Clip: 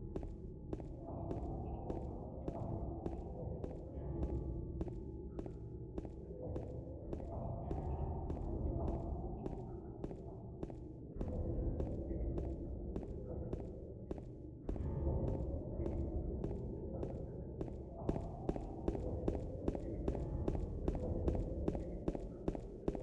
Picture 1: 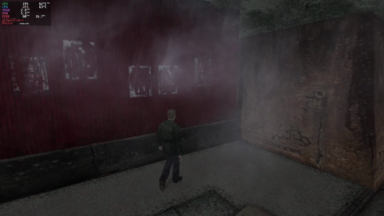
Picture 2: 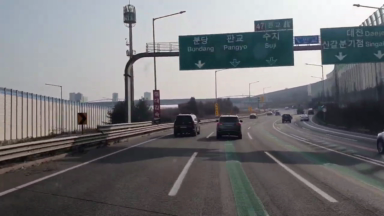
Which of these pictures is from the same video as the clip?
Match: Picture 1